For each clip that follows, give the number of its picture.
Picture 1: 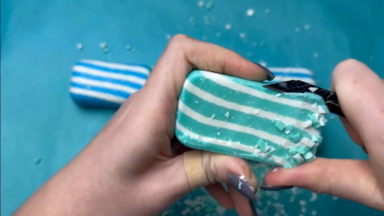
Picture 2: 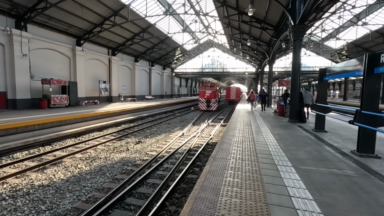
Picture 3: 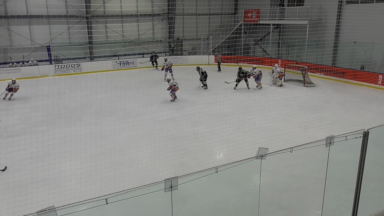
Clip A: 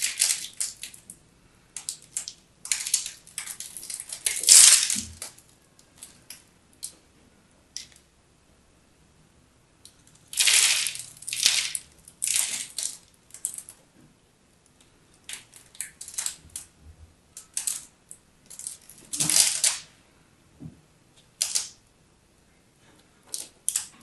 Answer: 1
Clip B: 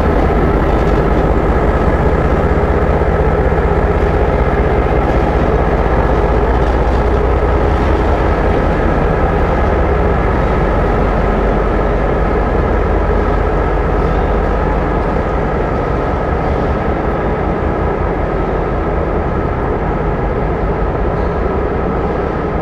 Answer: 2